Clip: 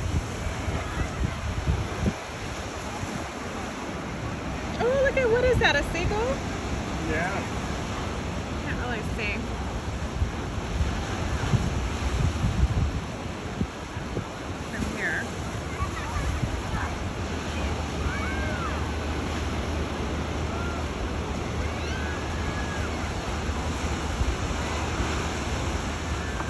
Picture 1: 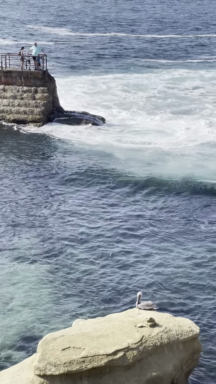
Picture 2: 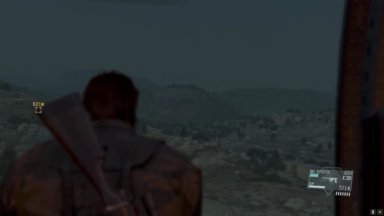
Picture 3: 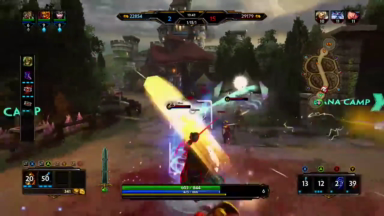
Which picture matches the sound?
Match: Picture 1